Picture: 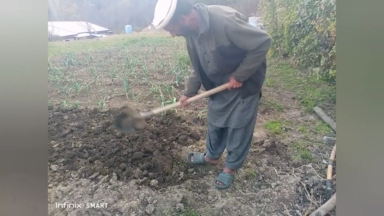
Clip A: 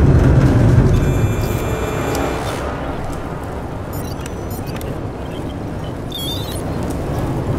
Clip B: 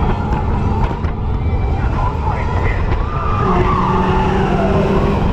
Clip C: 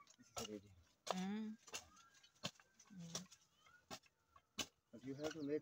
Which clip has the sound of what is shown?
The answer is C